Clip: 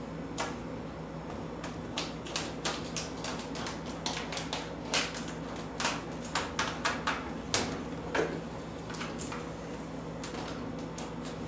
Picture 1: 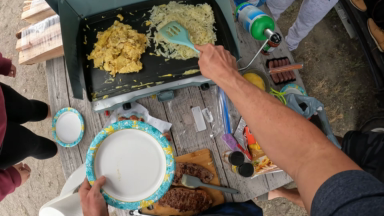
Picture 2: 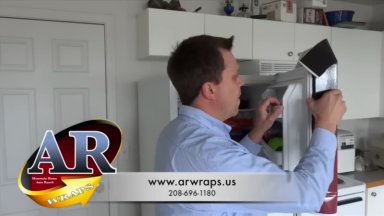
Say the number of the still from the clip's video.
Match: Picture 2